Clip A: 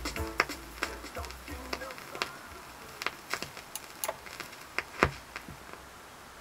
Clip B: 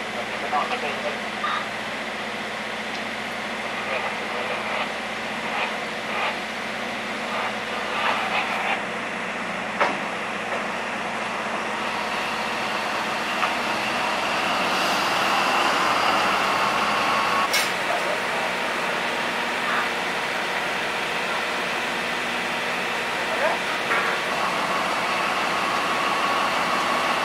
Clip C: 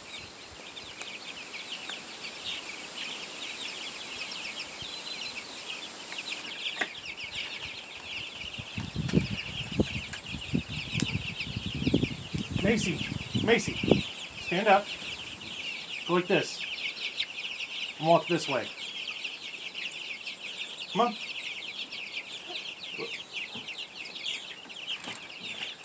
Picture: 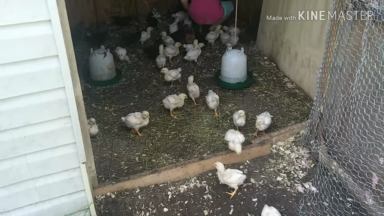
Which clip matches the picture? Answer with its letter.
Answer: C